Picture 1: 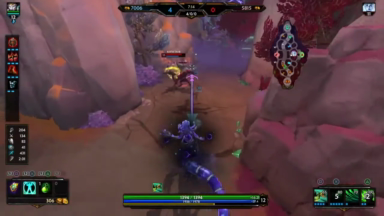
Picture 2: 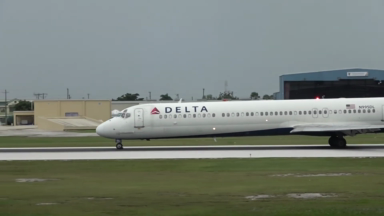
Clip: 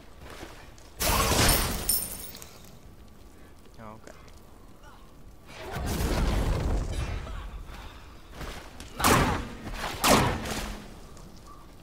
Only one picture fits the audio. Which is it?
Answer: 1